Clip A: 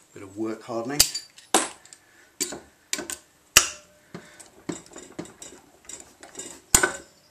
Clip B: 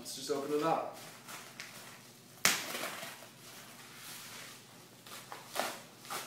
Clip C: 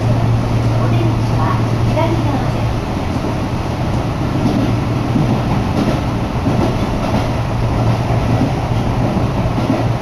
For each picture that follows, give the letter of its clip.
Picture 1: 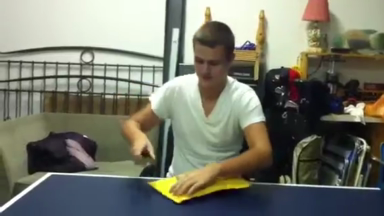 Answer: B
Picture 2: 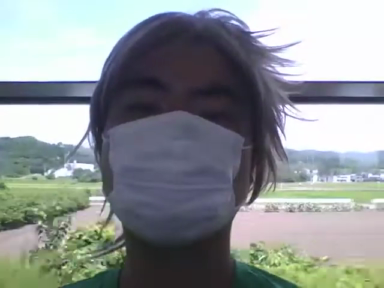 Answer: C